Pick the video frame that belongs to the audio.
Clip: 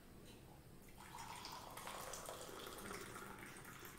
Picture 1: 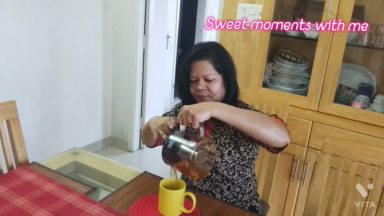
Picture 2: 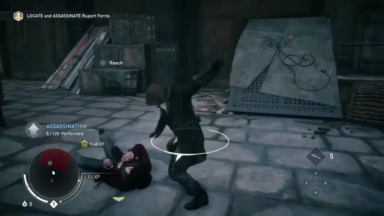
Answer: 1